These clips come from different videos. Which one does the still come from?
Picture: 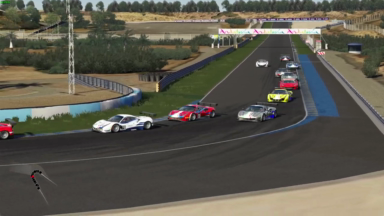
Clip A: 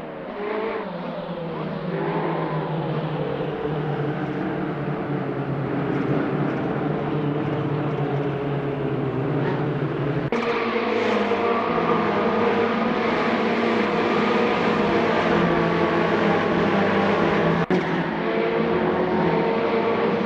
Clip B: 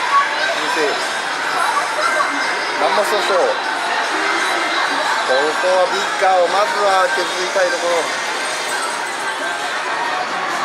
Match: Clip A